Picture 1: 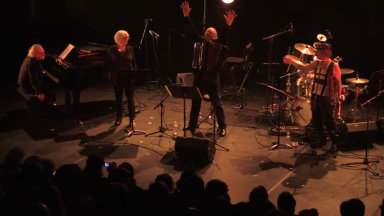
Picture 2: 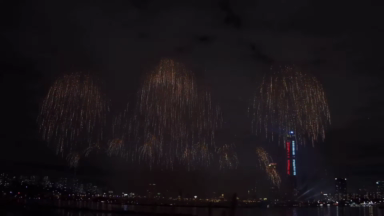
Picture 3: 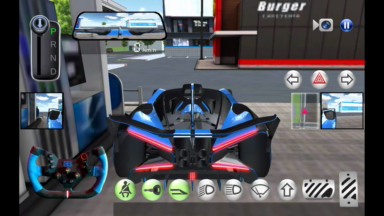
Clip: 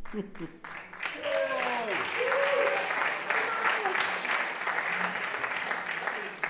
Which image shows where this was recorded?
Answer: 1